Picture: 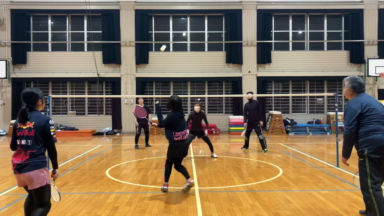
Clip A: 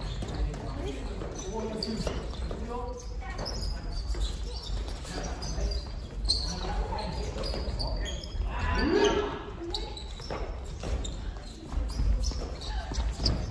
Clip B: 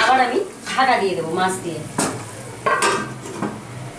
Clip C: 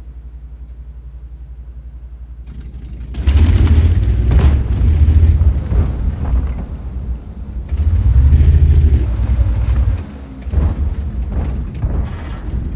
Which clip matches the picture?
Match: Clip A